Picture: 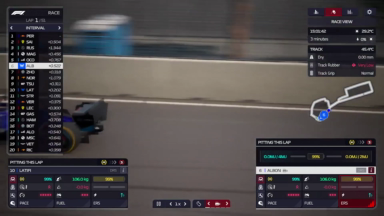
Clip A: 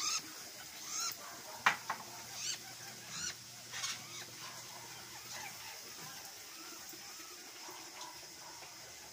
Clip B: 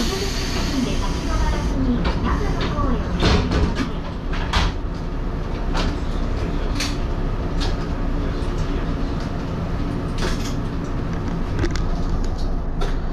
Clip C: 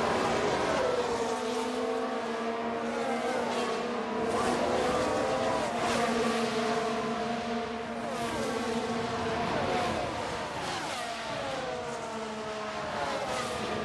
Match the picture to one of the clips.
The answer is C